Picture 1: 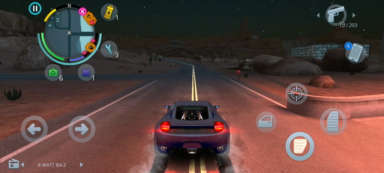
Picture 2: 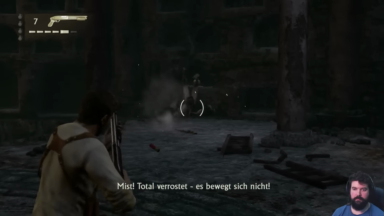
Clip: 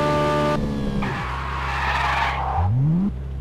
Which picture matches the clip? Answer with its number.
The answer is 1